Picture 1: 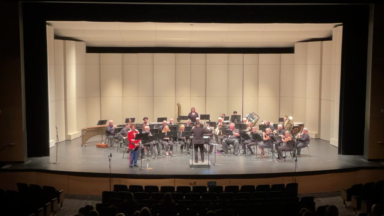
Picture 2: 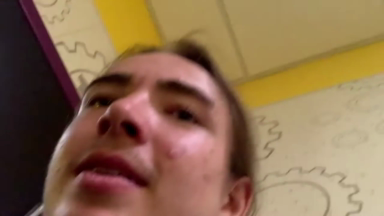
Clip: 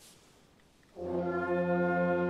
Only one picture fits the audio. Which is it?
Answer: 1